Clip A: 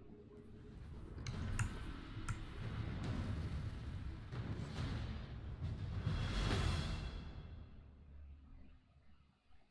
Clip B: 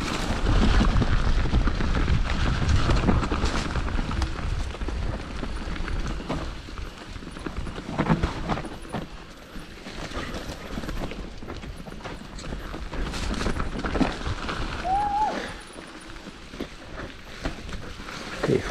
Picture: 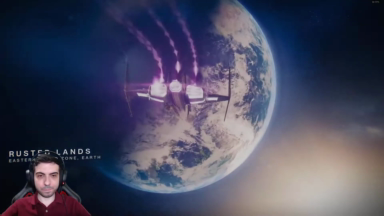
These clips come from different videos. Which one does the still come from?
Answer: A